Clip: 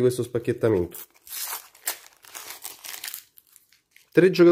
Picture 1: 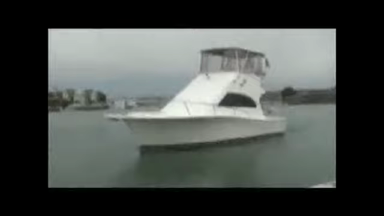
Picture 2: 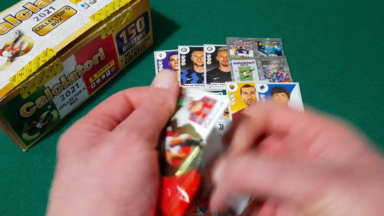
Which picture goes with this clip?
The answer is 2